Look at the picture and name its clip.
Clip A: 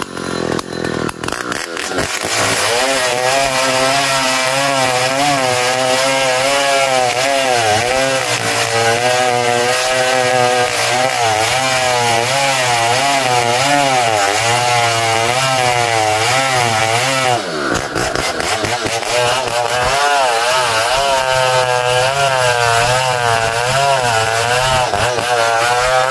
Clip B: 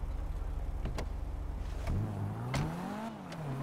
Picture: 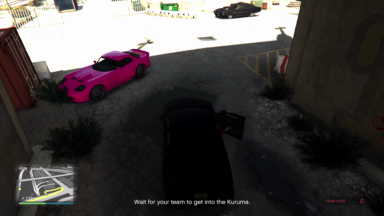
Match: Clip B